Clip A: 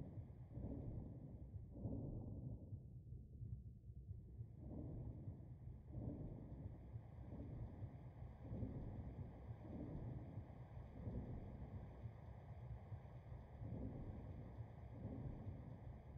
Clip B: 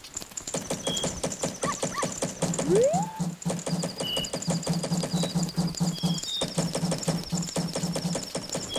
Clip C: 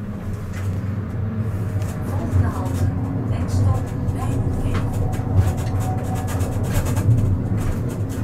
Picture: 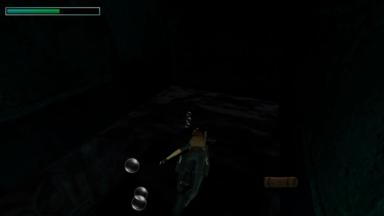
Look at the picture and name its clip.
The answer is A